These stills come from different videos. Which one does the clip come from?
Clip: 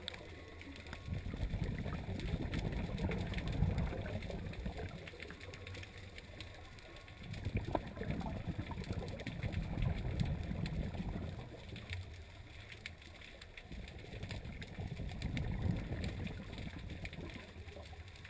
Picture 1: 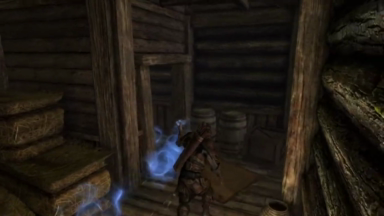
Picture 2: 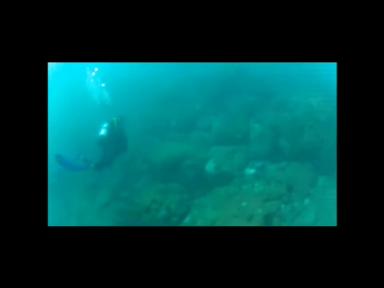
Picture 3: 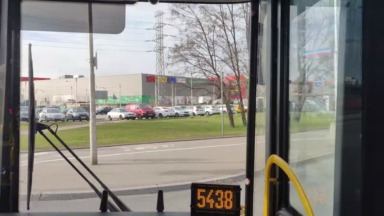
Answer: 2